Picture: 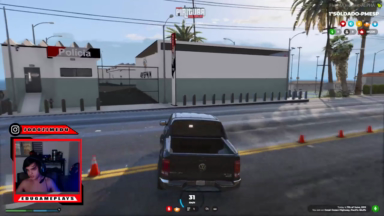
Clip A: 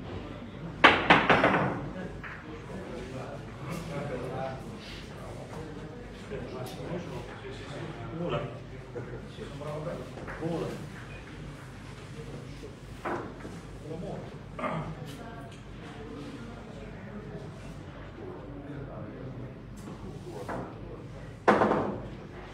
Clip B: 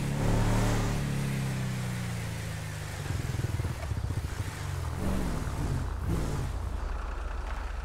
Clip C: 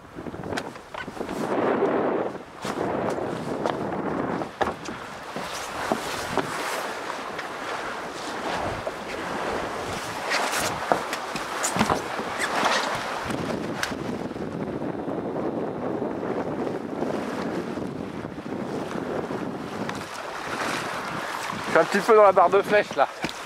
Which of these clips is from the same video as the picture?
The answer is B